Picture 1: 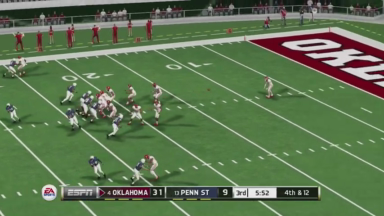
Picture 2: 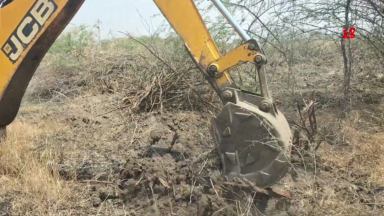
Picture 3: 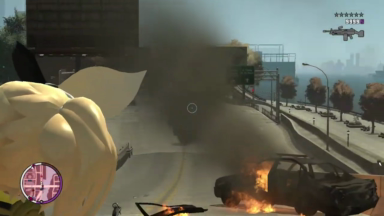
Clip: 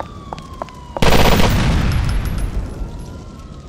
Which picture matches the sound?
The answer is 3